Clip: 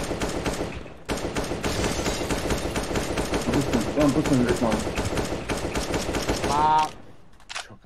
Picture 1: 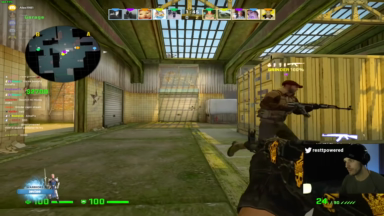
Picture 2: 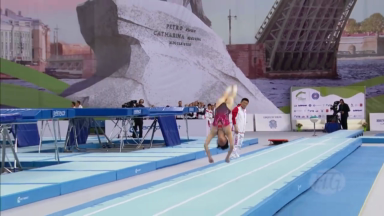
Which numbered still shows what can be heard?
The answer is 1